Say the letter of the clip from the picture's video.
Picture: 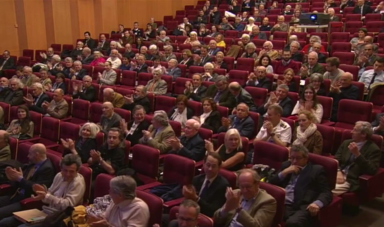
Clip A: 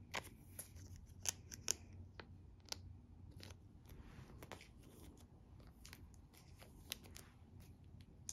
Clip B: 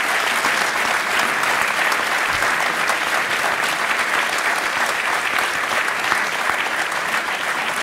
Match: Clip B